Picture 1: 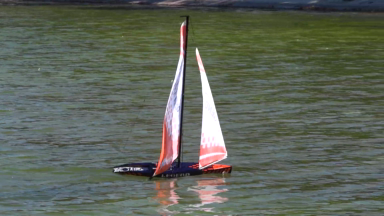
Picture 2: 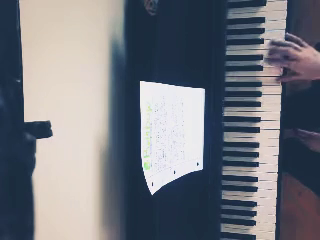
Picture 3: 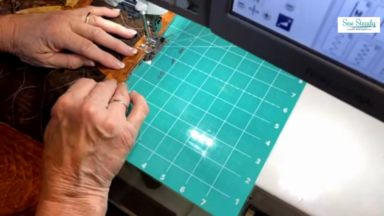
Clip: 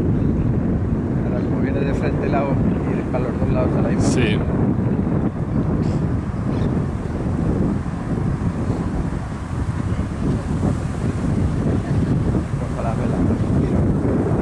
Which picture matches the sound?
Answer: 1